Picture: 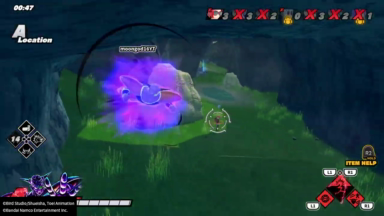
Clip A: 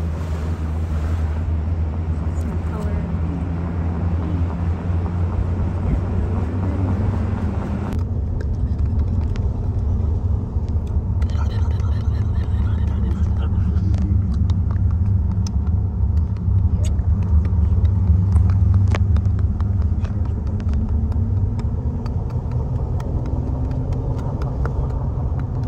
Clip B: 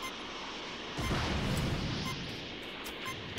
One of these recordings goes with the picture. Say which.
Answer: B